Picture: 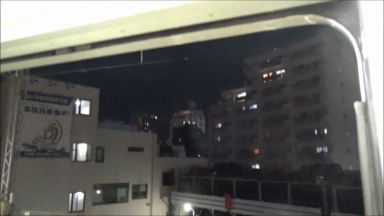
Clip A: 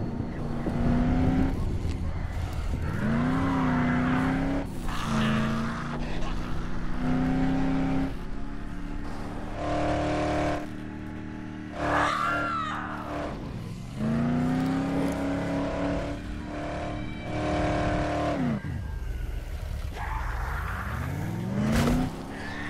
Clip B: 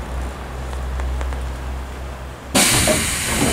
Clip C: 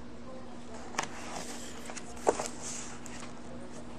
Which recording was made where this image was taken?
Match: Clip B